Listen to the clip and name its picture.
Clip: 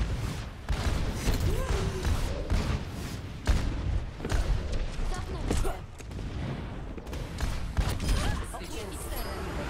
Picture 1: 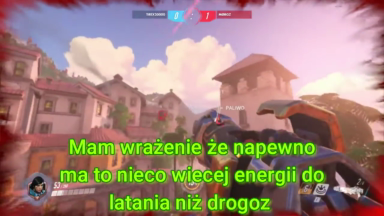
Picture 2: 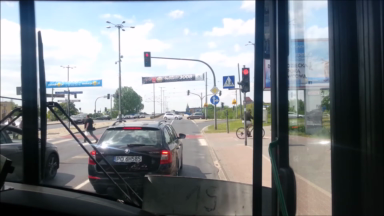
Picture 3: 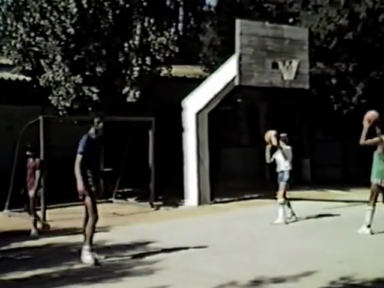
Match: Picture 1